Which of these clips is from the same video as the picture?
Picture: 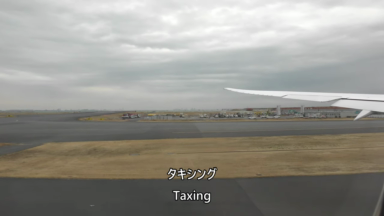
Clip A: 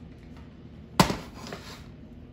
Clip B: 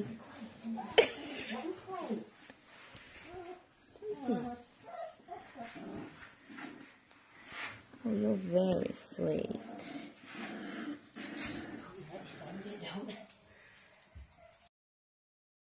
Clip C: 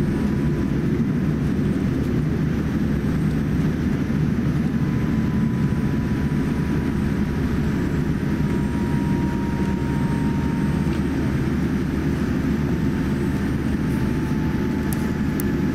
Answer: C